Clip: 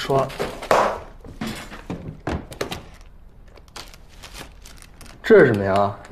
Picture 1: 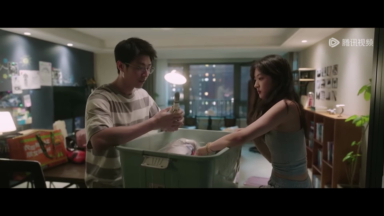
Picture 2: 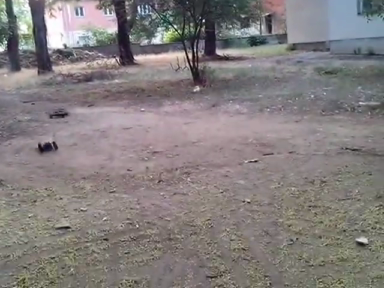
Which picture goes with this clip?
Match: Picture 1